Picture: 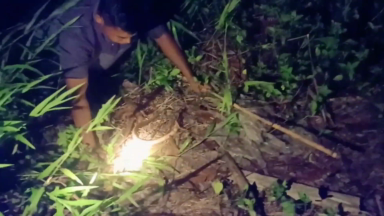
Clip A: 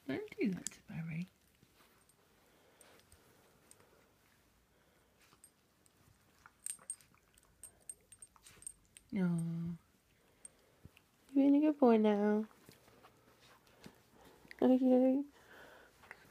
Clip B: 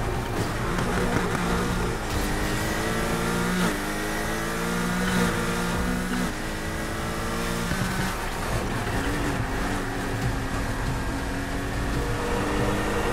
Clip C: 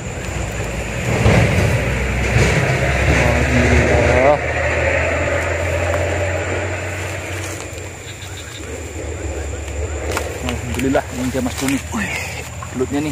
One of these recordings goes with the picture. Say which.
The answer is C